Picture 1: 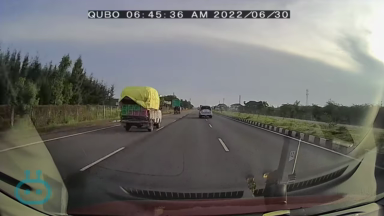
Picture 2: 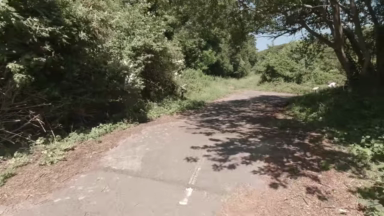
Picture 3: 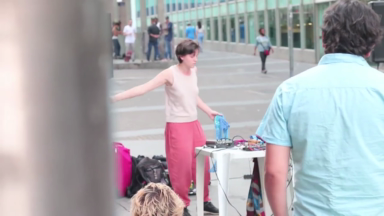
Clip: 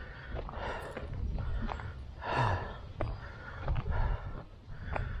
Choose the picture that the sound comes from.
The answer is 2